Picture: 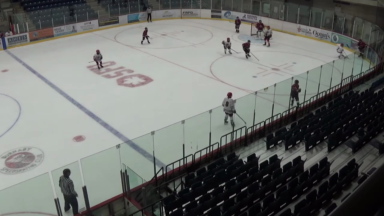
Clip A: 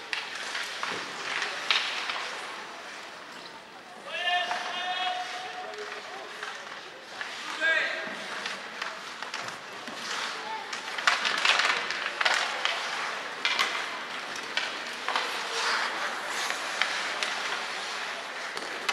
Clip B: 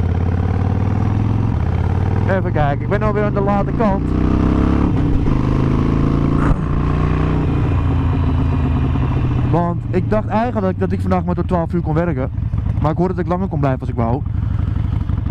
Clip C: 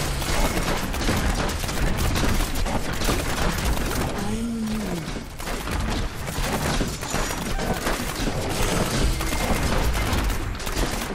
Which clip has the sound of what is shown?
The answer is A